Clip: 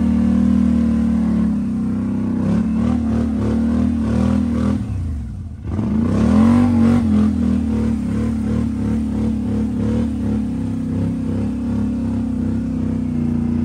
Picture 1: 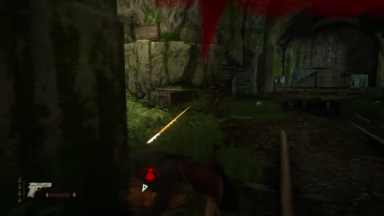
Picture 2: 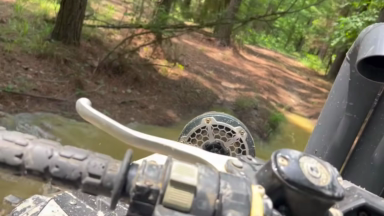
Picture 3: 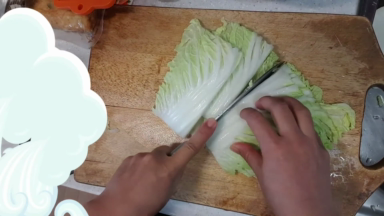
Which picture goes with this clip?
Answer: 2